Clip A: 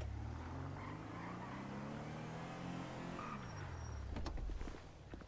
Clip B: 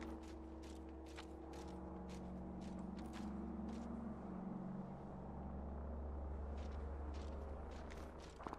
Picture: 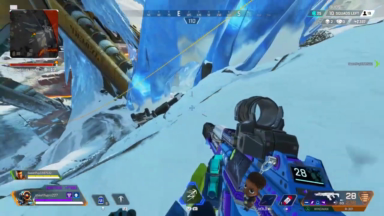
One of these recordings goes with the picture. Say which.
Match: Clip B